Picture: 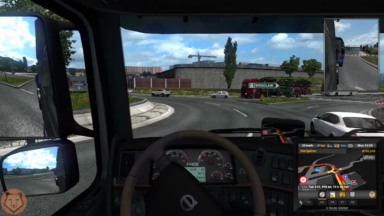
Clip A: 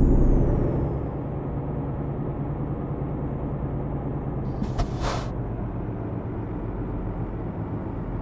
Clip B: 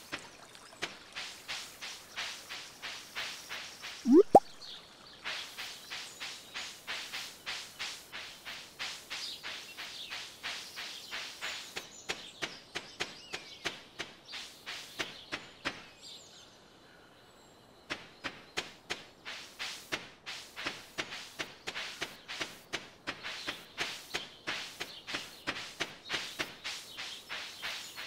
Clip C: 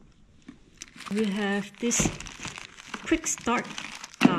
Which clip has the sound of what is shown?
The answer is A